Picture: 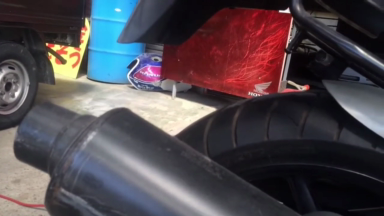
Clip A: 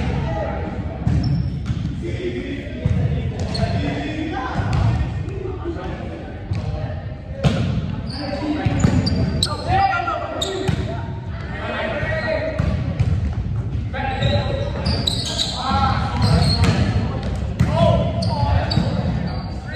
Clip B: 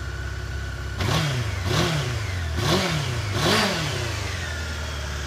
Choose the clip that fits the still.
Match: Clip B